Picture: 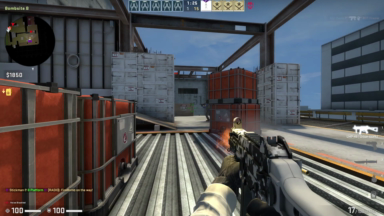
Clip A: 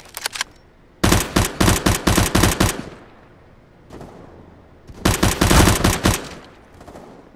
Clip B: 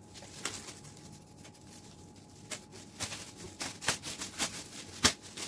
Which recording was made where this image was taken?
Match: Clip A